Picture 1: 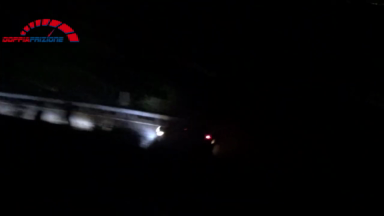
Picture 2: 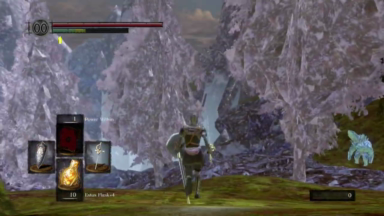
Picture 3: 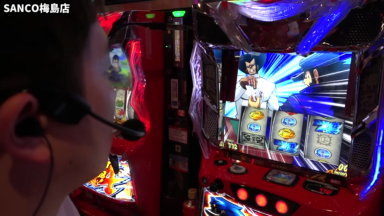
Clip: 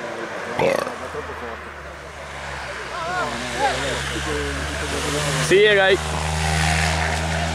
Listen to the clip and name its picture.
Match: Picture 1